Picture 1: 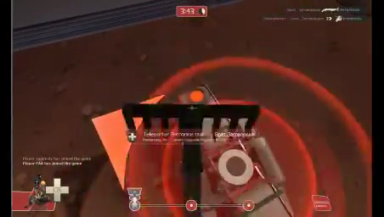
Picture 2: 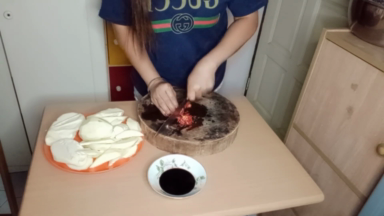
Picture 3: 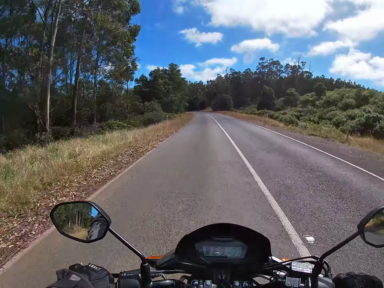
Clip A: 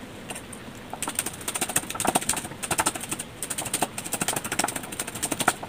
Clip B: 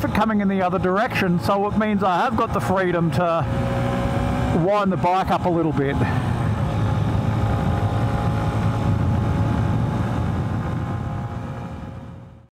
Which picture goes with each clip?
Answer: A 2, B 3